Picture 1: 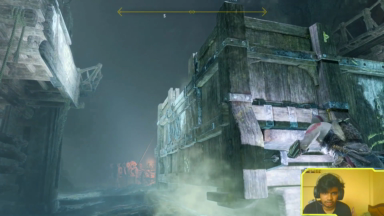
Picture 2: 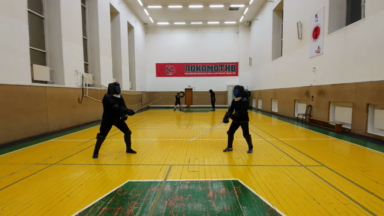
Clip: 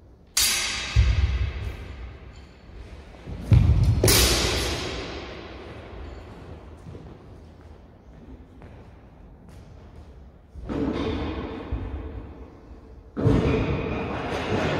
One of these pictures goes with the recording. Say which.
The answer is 2